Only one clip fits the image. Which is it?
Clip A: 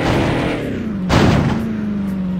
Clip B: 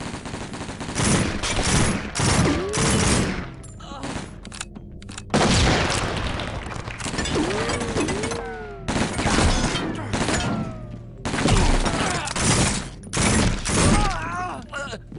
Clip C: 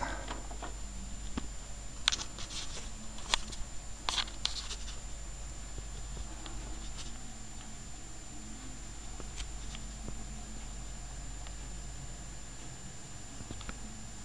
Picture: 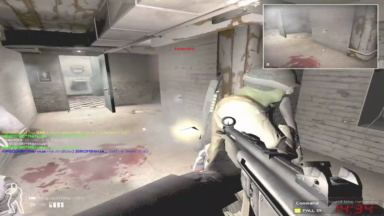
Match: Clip B